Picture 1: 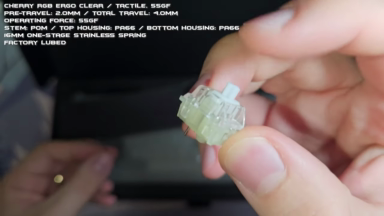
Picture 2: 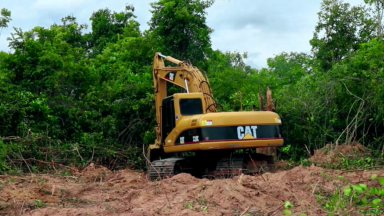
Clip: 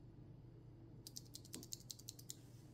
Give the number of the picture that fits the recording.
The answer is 1